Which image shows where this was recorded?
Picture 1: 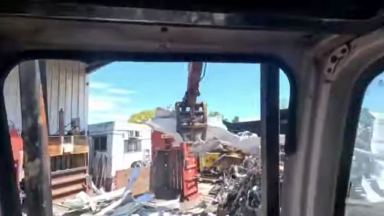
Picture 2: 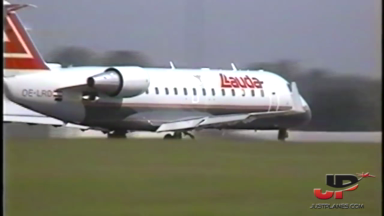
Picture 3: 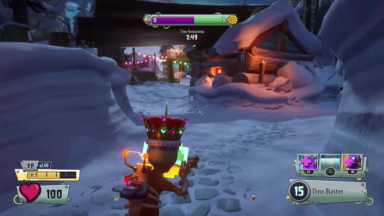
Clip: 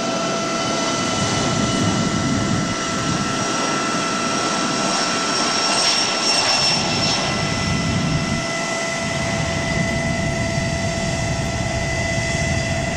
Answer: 2